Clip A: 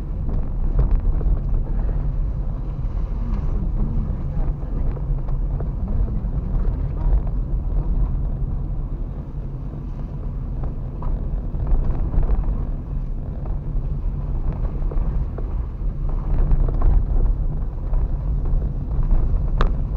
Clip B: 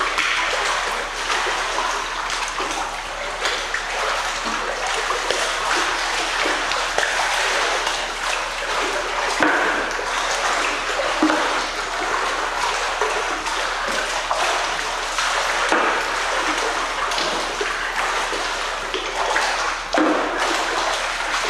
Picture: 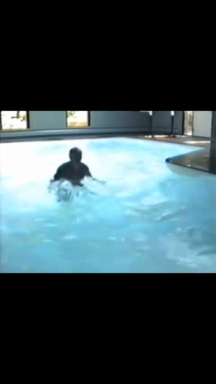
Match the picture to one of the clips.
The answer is B